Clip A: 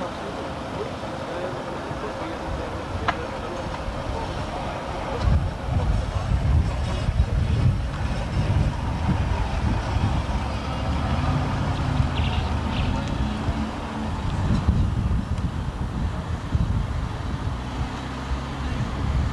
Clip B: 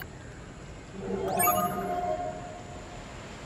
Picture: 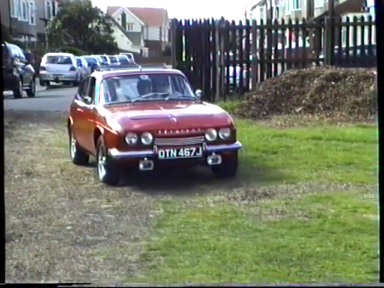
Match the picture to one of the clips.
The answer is A